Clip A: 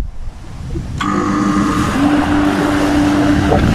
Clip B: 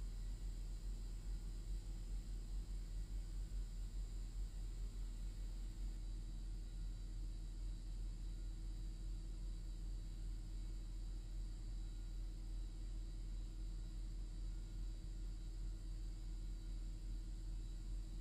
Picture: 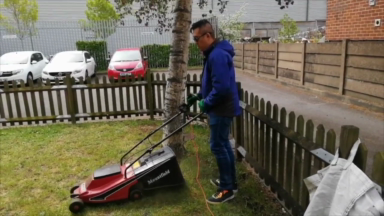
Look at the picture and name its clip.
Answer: A